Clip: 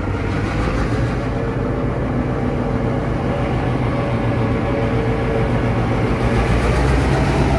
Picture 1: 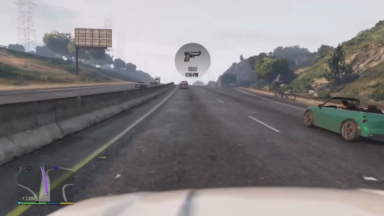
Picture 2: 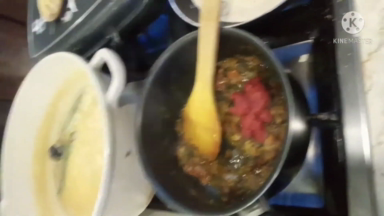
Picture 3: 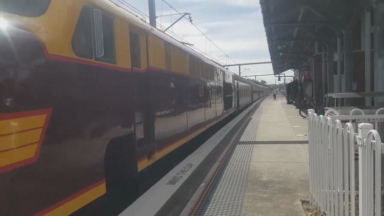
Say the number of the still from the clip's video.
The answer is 3